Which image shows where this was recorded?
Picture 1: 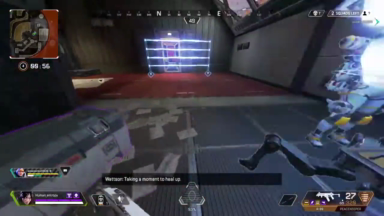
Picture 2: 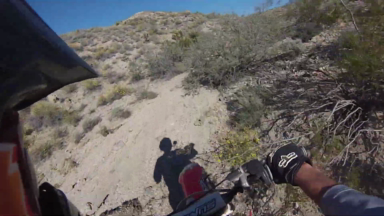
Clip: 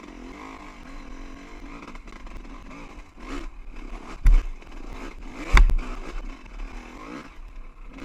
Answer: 2